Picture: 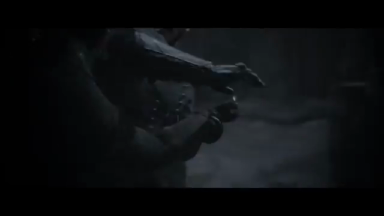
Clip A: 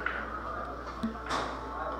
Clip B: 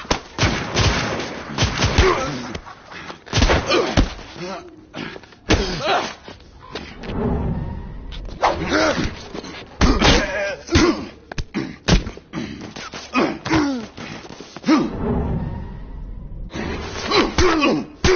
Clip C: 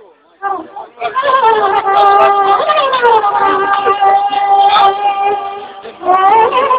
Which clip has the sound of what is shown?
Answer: B